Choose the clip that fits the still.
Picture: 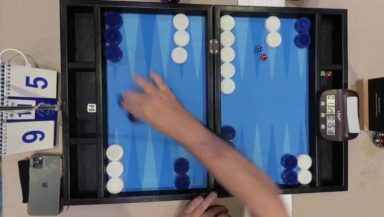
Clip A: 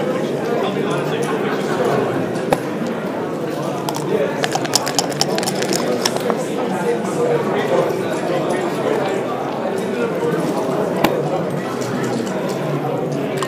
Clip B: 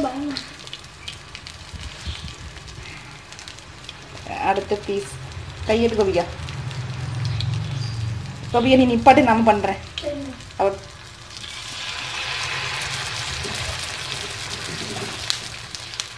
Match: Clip A